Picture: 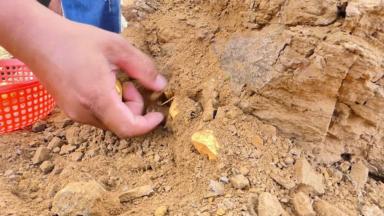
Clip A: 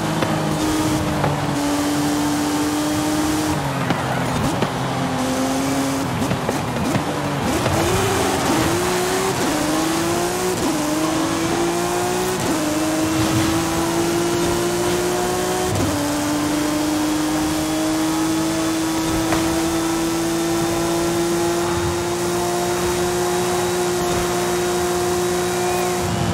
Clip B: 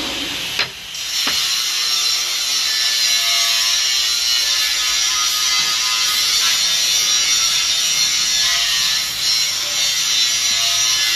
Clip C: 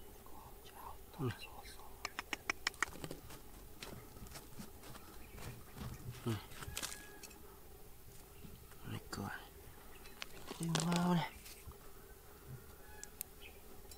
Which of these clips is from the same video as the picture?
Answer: C